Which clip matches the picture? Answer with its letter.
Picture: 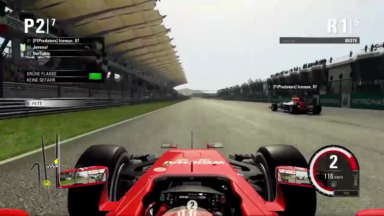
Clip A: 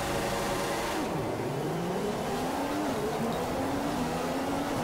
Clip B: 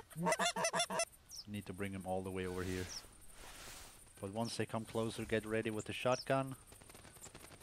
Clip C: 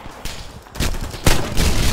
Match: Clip A